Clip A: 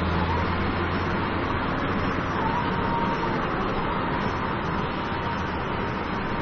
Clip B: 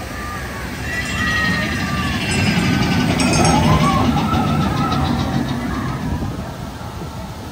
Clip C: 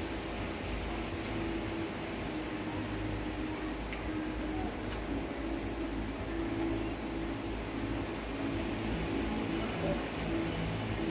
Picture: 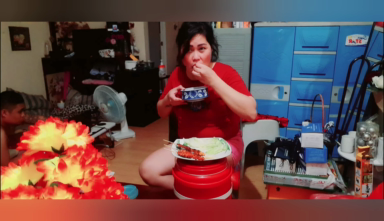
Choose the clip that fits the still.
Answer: C